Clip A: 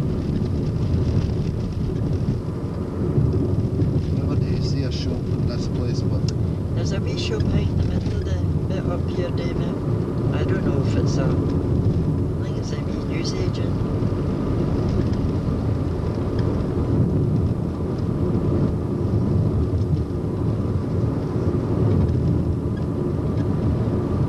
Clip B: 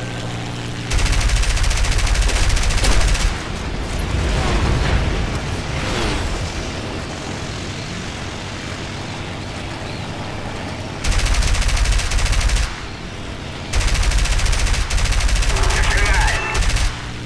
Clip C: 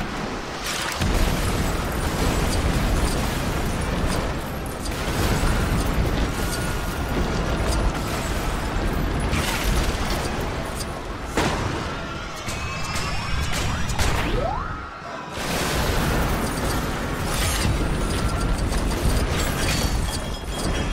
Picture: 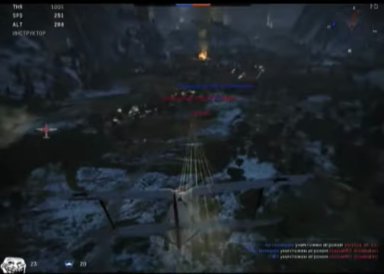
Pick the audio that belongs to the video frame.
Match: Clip B